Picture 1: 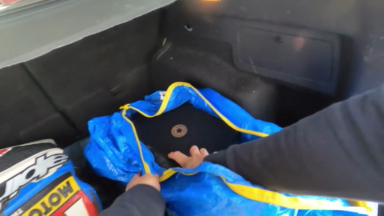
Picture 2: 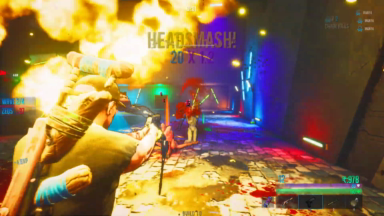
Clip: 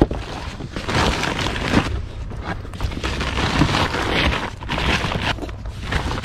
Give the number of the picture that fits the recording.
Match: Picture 1